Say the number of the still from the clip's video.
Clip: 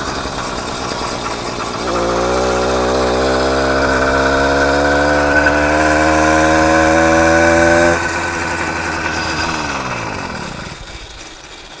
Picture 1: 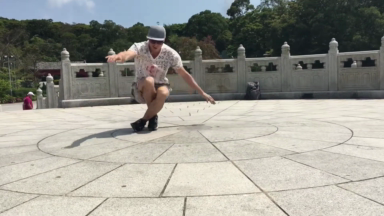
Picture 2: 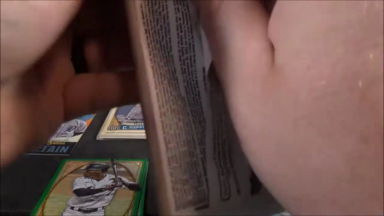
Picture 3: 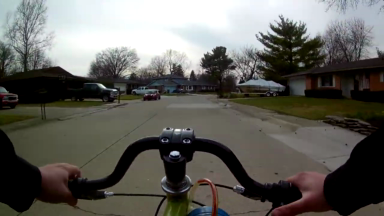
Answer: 3